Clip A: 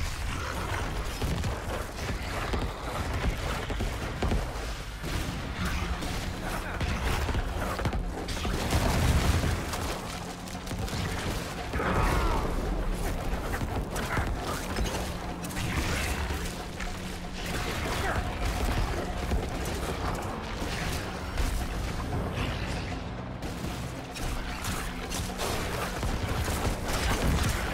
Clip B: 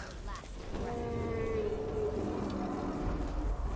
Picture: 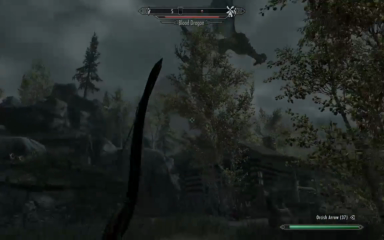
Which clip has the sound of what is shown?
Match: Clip B